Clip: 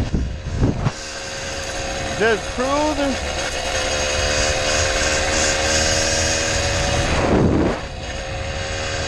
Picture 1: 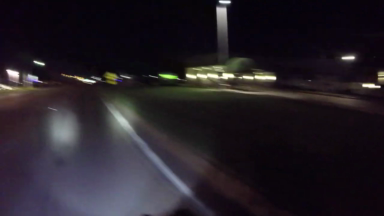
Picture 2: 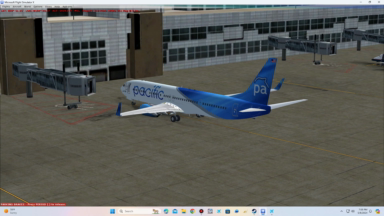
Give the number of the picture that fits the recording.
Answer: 1